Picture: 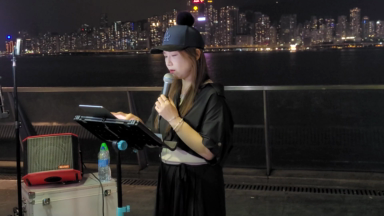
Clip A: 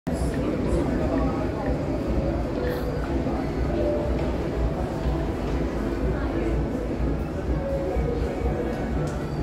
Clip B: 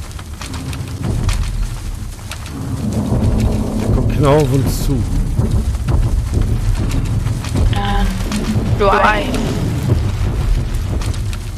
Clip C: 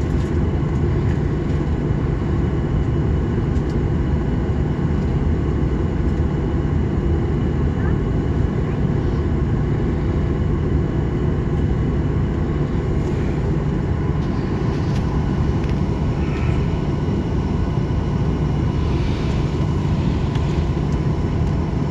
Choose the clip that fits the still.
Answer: A